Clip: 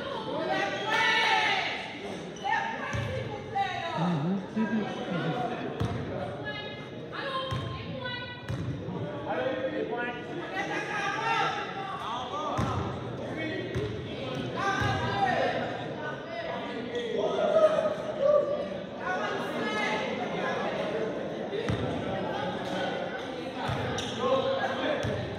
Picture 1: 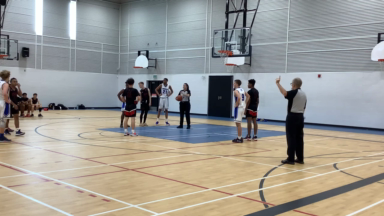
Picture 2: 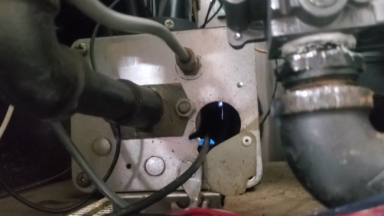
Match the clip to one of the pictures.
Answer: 1